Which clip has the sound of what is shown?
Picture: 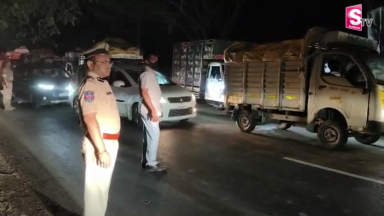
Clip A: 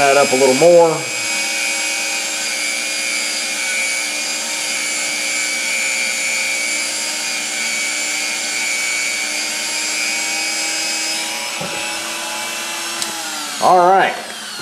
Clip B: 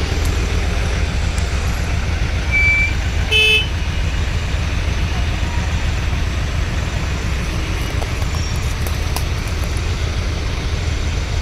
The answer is B